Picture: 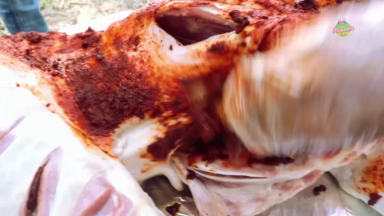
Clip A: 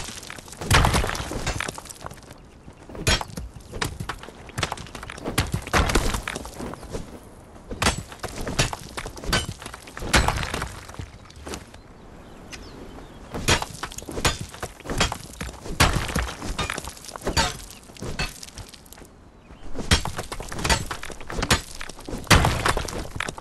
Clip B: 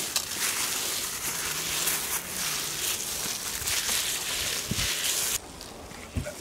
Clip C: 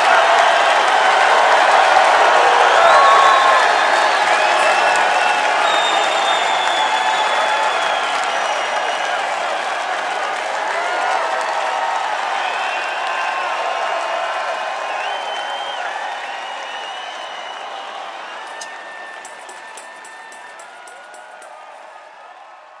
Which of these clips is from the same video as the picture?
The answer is B